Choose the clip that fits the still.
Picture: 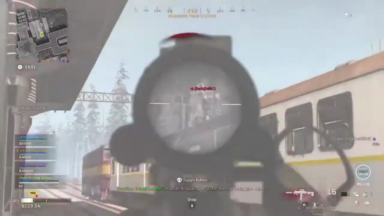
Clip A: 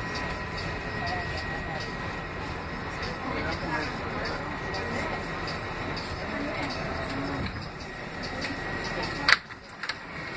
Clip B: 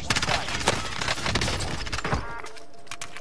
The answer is B